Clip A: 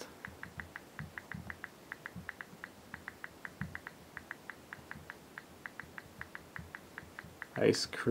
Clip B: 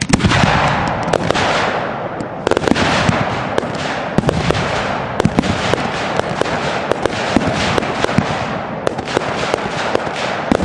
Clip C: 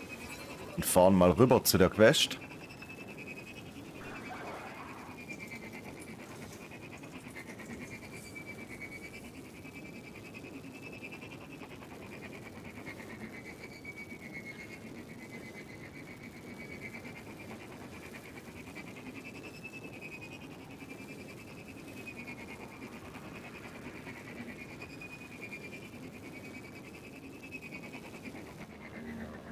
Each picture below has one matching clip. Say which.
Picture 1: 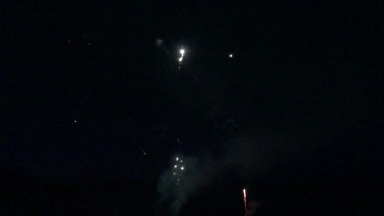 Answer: B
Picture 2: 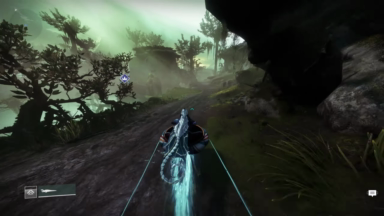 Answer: C